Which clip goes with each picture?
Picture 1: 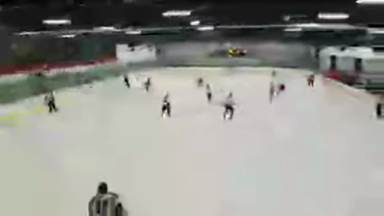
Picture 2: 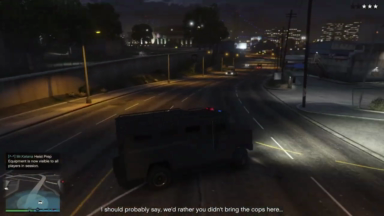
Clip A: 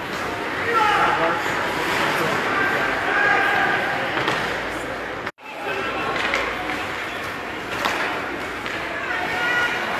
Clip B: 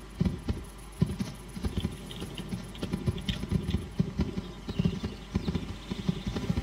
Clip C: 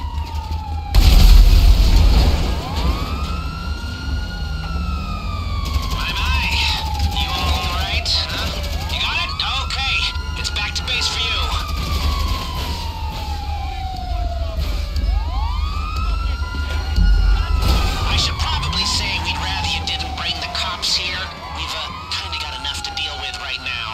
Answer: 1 A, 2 C